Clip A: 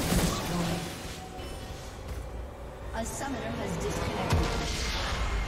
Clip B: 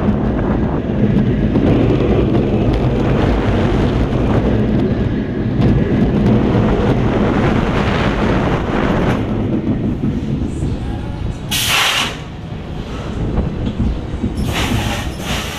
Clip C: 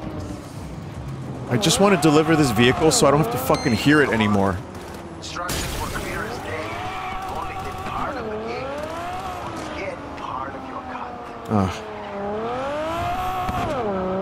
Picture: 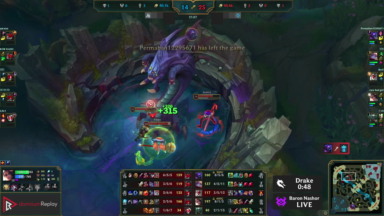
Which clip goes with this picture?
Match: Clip A